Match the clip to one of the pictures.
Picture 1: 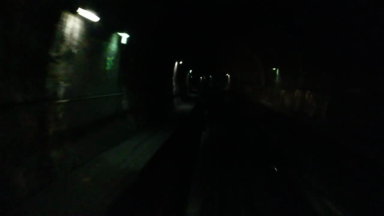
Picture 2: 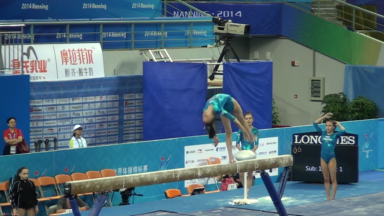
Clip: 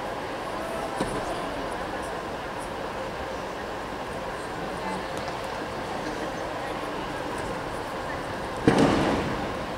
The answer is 2